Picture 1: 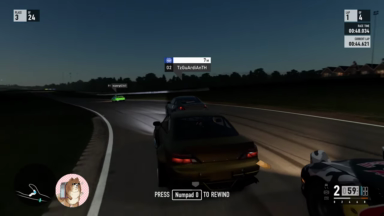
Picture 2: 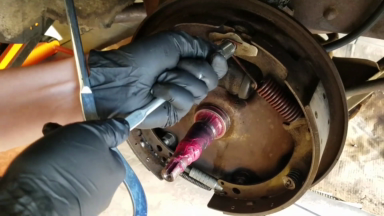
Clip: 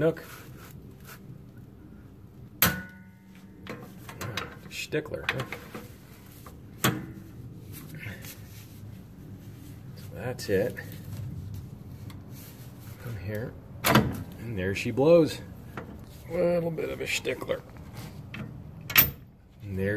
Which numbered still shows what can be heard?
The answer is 2